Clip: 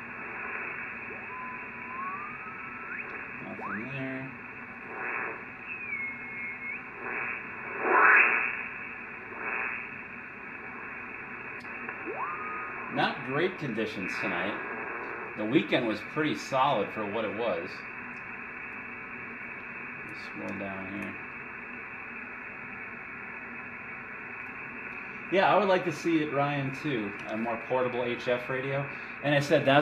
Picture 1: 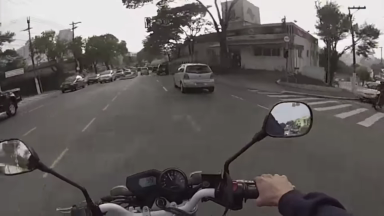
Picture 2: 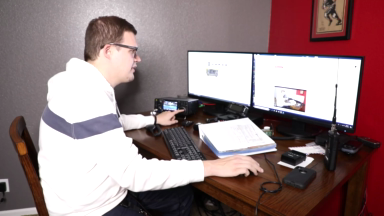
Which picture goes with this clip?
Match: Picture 2